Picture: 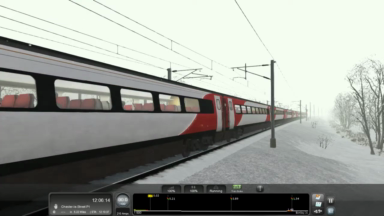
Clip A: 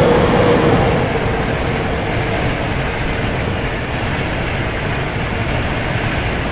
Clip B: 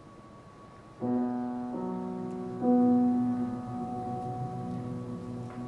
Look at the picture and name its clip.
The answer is A